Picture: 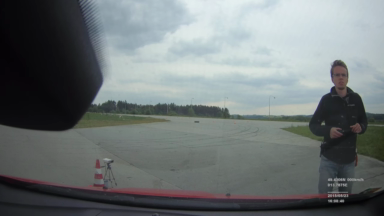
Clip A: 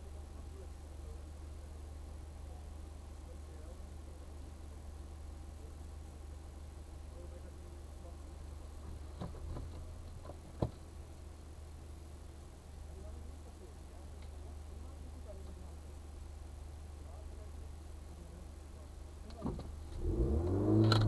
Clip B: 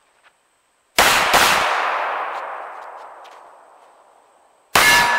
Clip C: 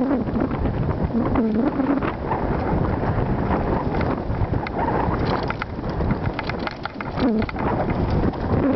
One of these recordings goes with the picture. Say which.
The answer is A